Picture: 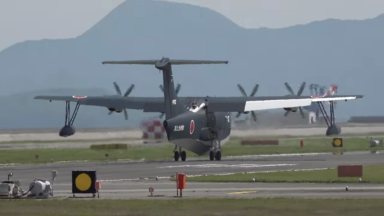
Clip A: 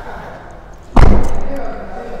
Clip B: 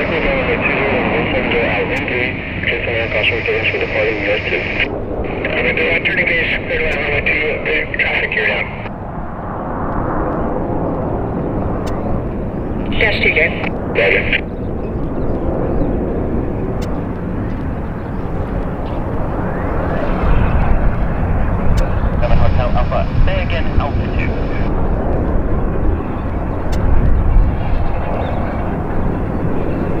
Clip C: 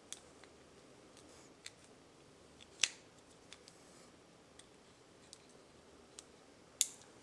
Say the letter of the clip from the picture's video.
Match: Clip B